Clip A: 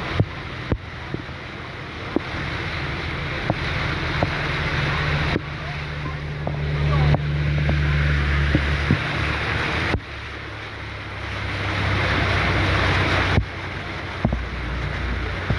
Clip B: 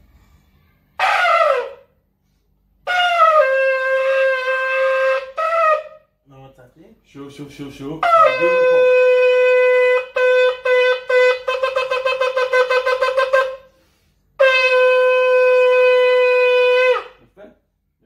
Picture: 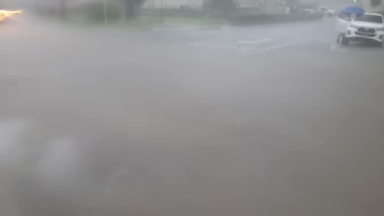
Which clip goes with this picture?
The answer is A